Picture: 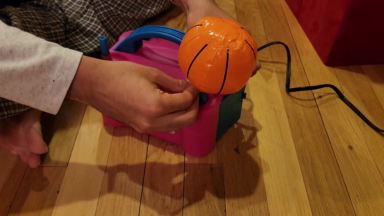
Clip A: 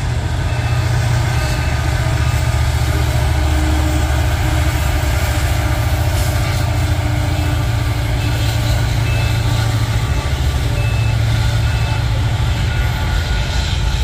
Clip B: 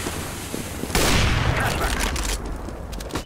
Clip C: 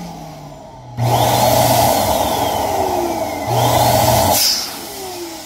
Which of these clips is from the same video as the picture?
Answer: C